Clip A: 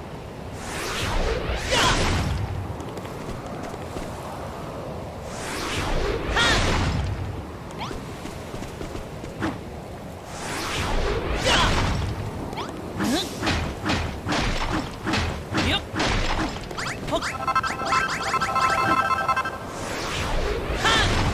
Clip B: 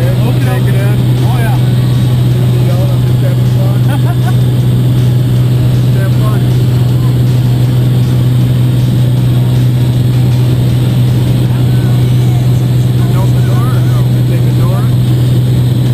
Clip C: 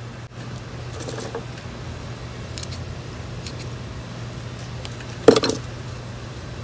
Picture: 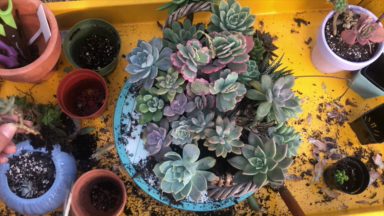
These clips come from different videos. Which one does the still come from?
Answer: C